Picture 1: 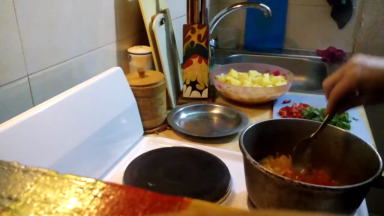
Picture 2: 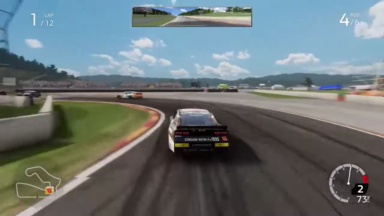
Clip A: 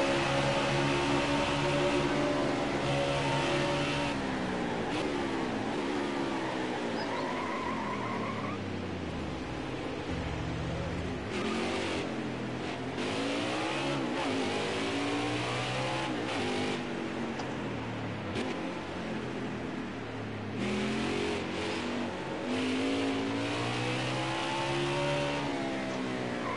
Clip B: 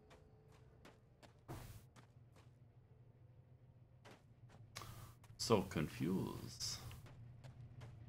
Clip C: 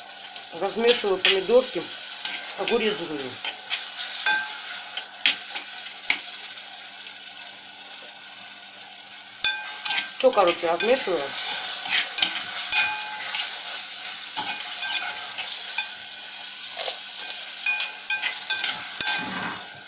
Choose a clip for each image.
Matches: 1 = C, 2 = A